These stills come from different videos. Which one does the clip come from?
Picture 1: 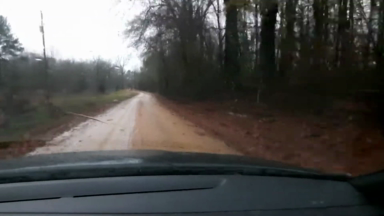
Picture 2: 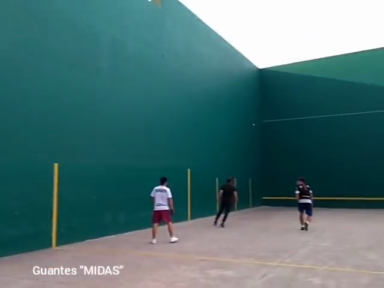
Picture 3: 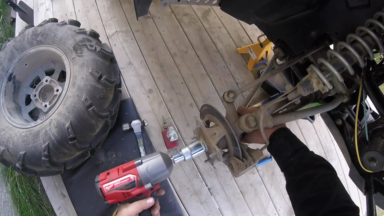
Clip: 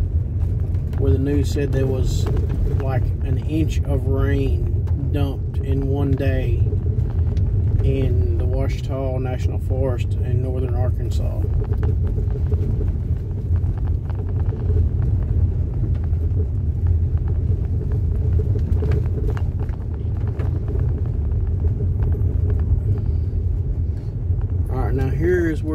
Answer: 1